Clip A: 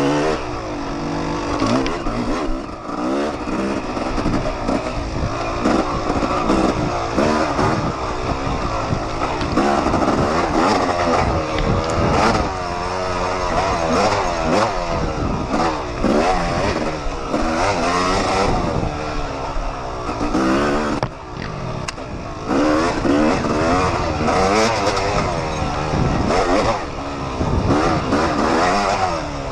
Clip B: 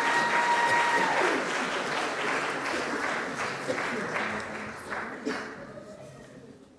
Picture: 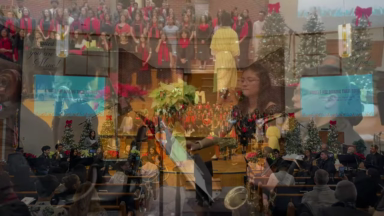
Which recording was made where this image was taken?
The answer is B